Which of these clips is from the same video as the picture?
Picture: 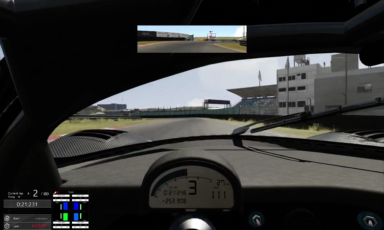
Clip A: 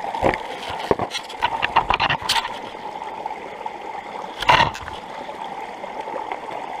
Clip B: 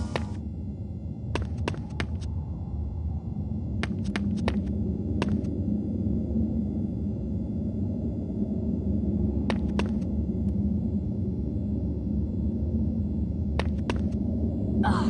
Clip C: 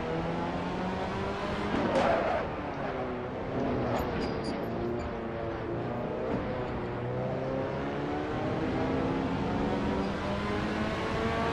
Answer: C